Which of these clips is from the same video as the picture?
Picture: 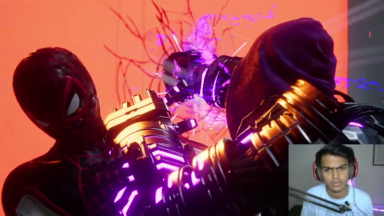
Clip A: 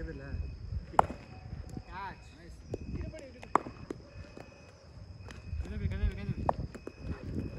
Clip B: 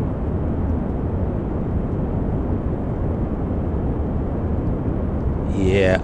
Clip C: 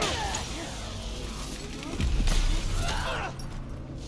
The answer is C